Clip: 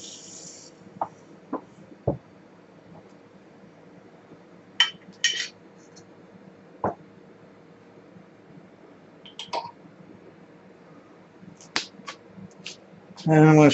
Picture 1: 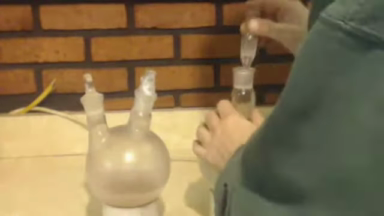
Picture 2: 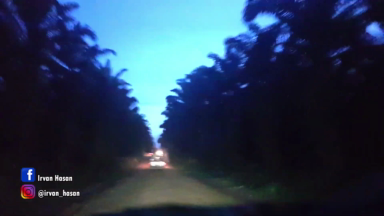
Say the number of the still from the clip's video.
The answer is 1